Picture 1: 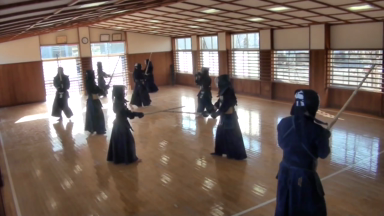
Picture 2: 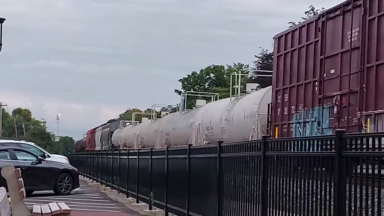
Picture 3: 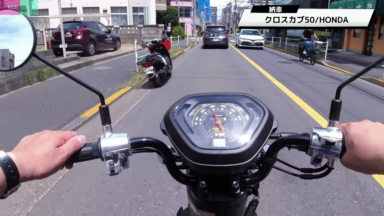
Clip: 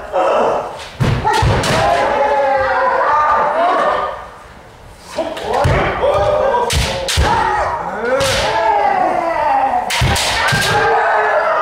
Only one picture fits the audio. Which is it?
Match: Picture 1